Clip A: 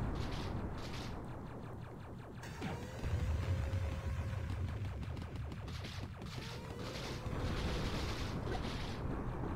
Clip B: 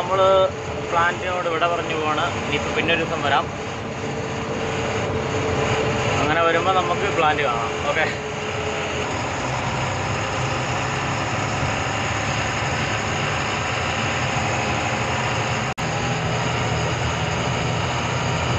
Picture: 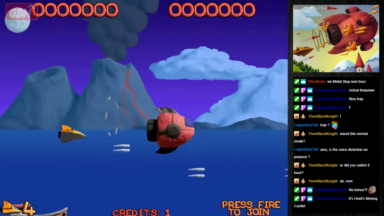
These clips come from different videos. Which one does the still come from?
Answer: A